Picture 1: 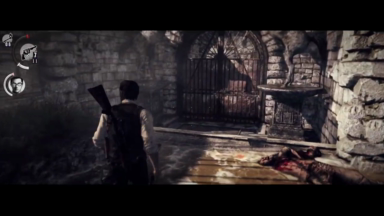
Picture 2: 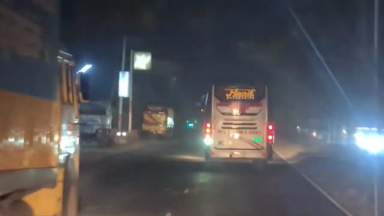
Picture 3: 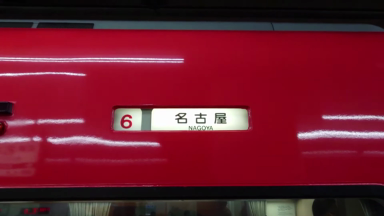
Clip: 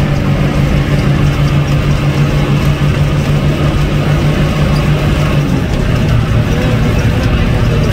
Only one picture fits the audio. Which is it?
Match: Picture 2